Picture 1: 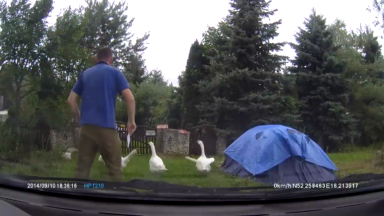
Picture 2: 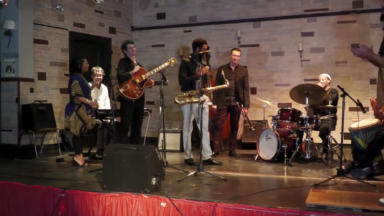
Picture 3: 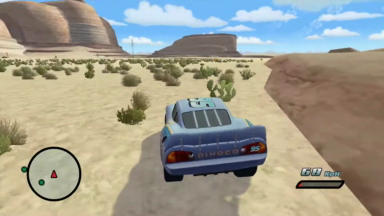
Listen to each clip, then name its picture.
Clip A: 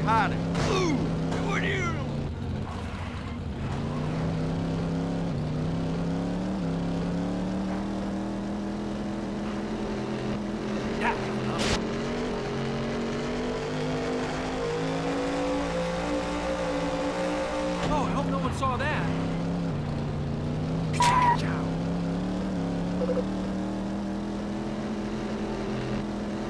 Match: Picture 3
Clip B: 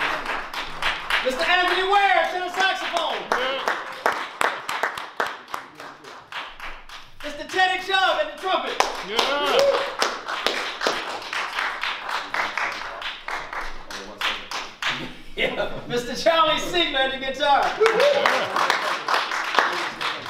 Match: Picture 2